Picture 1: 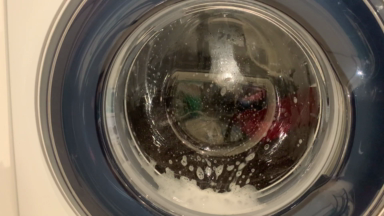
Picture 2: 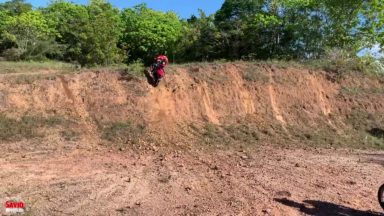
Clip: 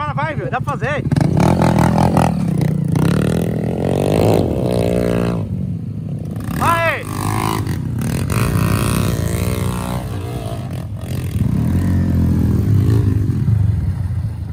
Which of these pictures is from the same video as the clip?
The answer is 2